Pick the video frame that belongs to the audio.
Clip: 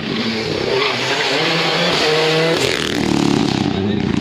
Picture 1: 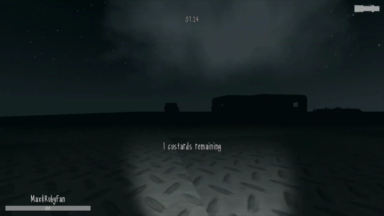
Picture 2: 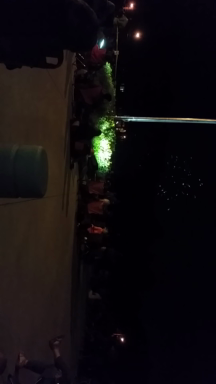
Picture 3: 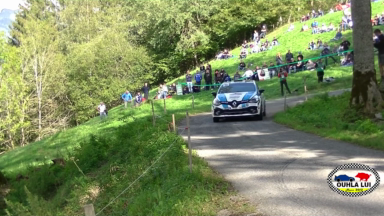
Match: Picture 3